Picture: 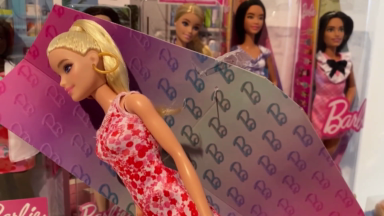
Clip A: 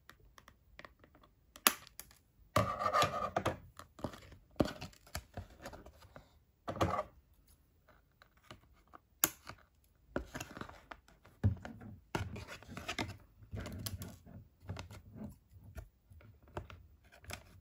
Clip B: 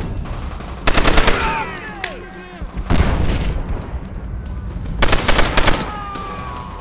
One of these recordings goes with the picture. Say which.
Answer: A